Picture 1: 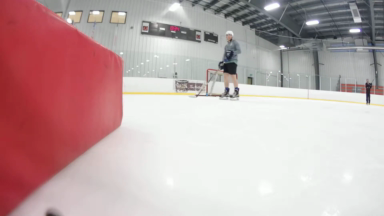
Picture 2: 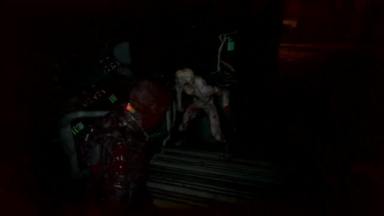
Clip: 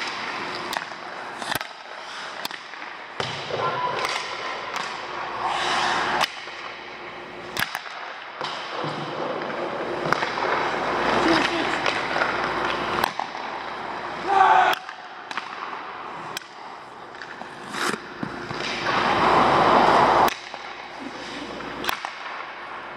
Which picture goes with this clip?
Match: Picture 1